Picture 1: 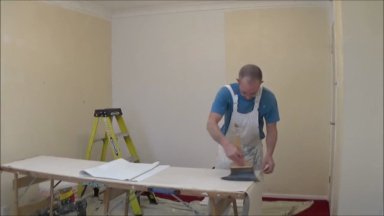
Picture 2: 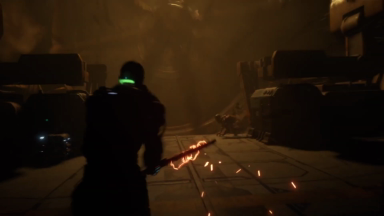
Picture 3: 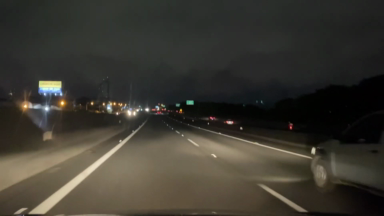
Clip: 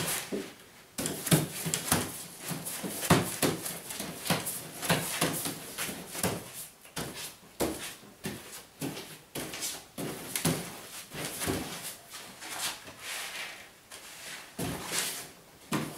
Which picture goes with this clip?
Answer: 1